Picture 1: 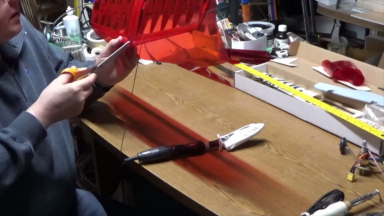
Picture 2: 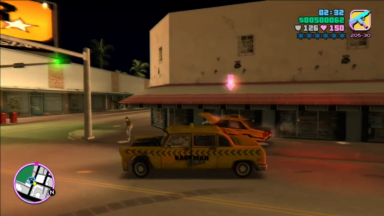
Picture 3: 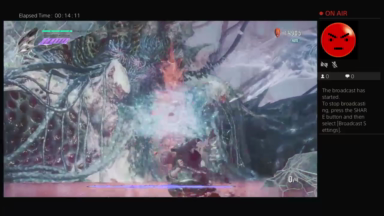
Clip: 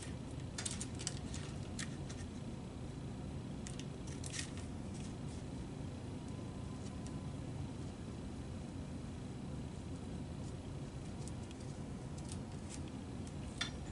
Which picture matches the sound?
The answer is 1